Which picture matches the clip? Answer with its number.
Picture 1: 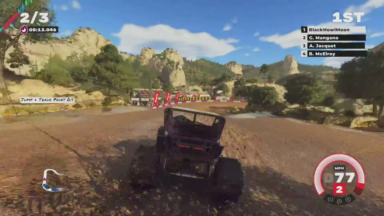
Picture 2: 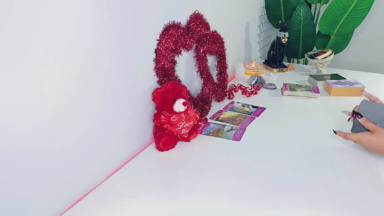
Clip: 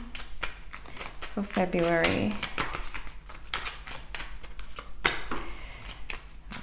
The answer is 2